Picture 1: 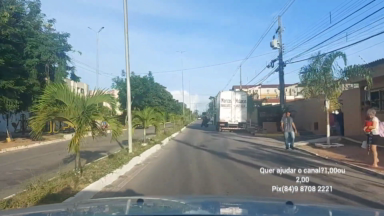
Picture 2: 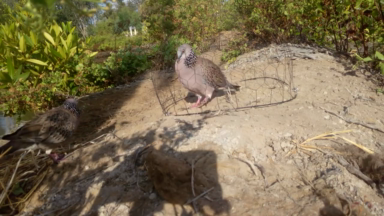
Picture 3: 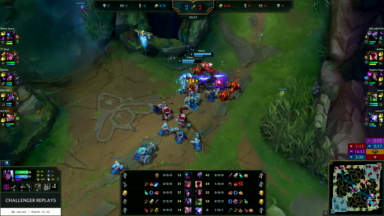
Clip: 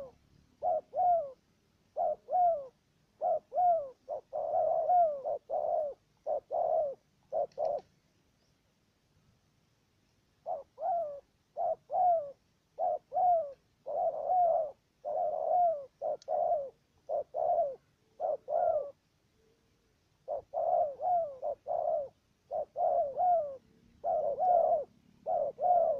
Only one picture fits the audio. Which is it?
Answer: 2